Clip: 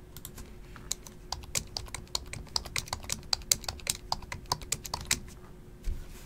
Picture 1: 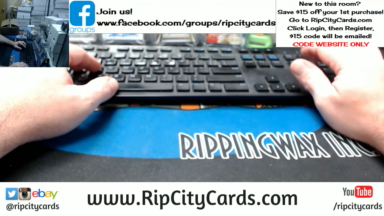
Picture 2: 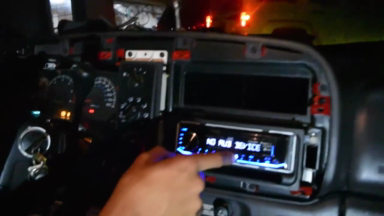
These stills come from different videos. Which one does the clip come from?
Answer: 1